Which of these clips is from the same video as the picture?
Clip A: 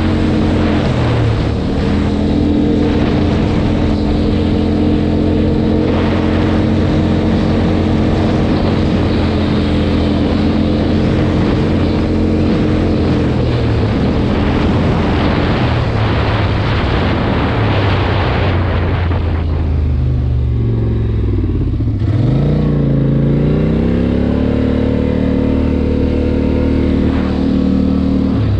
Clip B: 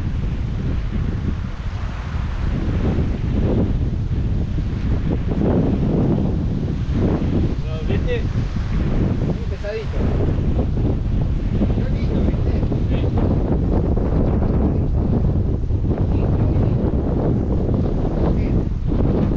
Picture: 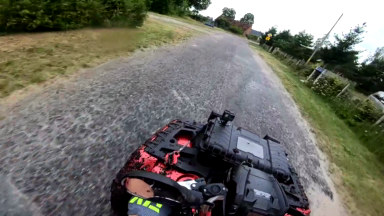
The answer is A